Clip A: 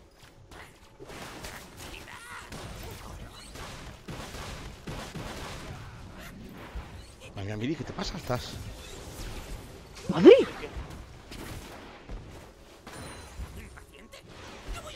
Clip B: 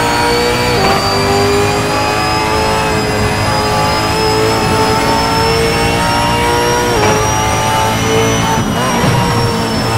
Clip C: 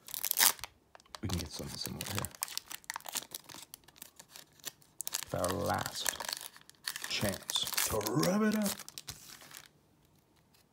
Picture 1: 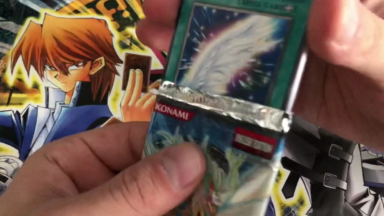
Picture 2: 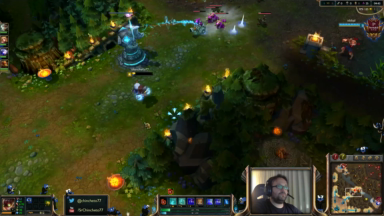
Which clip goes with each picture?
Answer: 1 C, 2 A